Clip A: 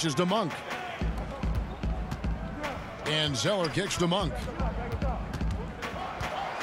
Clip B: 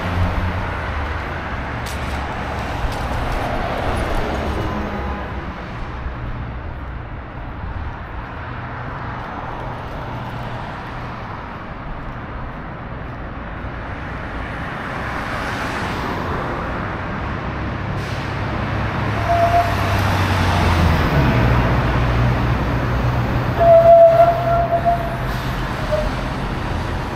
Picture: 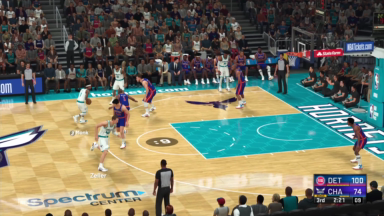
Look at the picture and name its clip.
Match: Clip A